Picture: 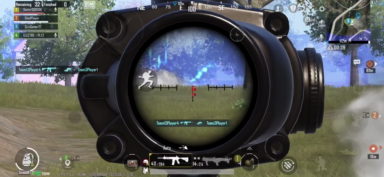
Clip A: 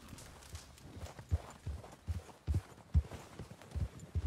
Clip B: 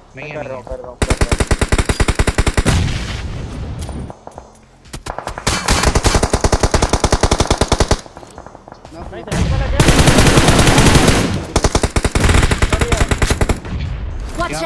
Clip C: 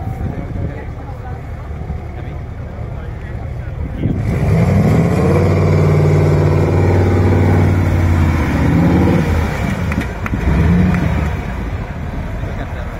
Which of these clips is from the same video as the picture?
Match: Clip B